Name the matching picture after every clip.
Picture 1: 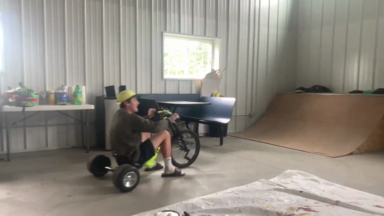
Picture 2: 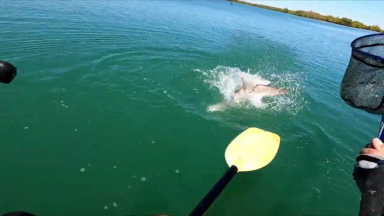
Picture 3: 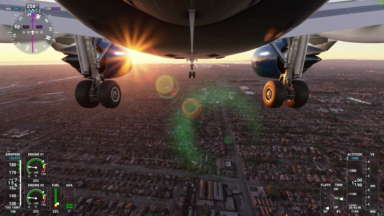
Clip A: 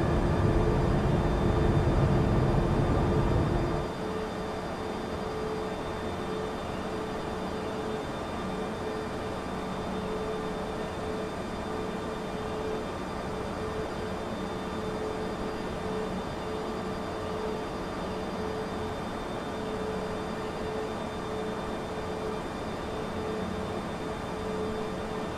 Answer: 3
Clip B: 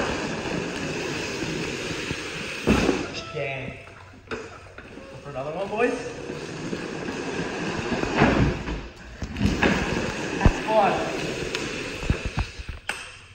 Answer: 1